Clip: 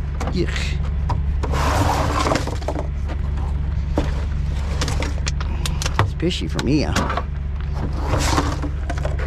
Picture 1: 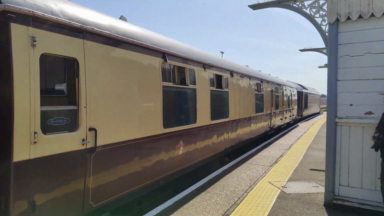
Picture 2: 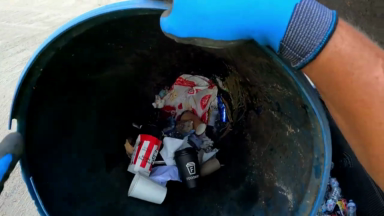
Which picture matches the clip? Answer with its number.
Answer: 2